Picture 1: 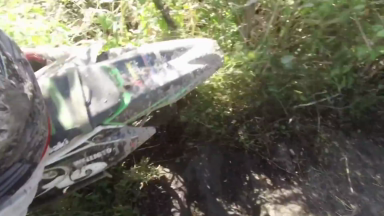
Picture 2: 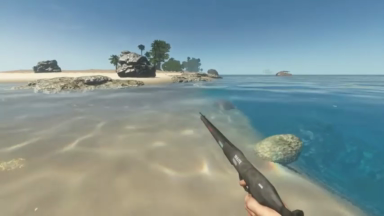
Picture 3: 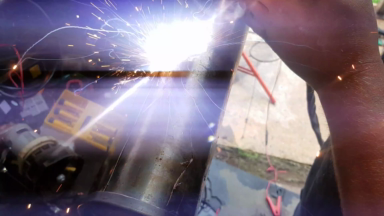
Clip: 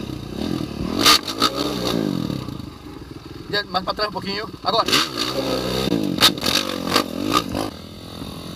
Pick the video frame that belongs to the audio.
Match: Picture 1